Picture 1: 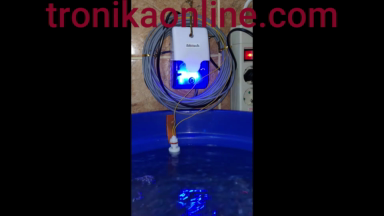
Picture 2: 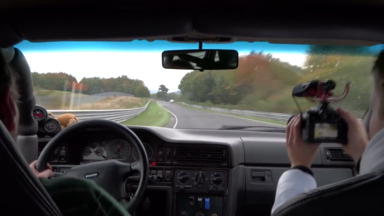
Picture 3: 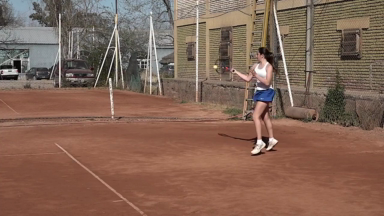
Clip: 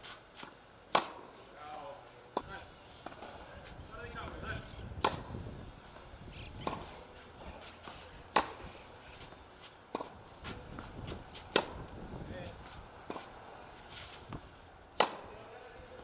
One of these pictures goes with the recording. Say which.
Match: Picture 3